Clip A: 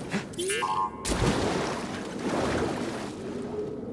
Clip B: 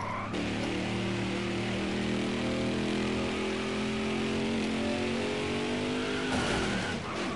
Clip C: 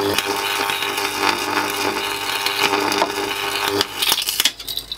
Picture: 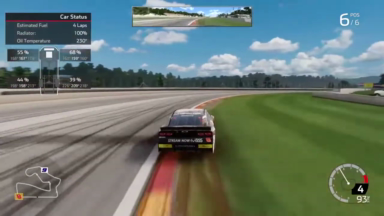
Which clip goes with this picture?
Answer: B